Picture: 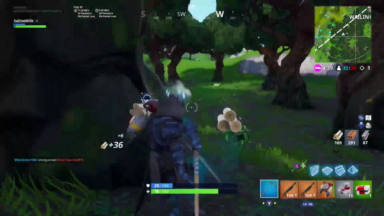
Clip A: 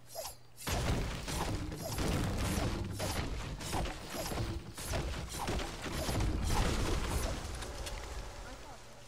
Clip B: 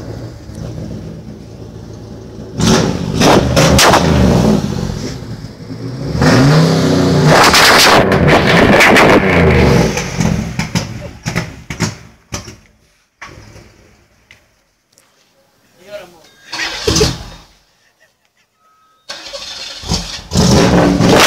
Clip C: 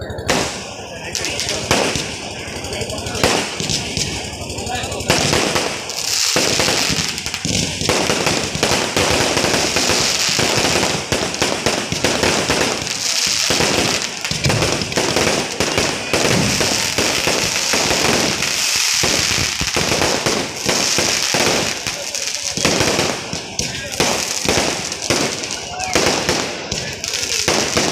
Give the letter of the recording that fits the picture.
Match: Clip A